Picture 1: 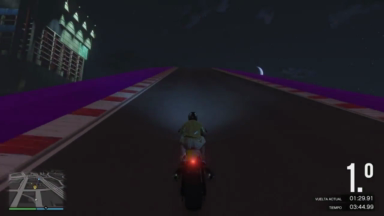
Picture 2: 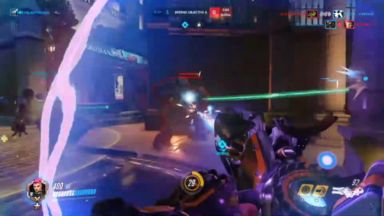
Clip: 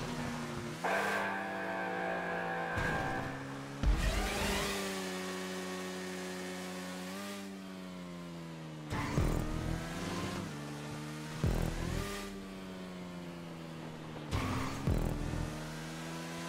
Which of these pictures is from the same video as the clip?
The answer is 1